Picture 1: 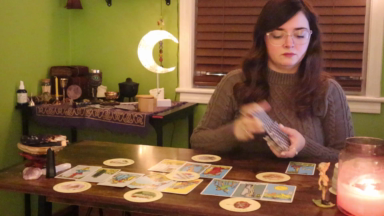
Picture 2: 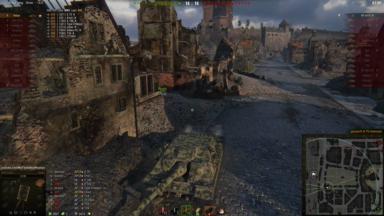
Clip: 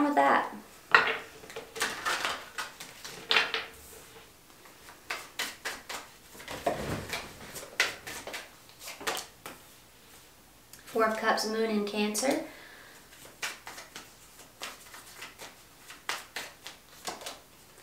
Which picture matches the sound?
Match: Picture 1